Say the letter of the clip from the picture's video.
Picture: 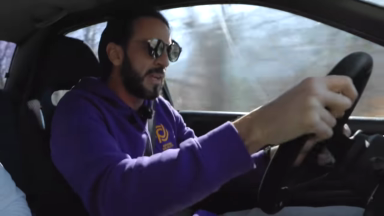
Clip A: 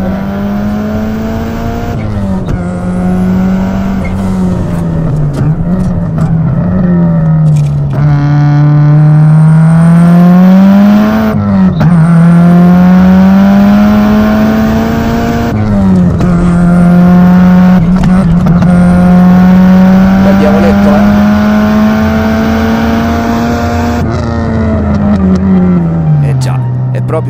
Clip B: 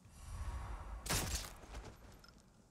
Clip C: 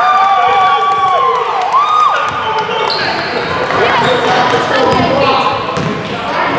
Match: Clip A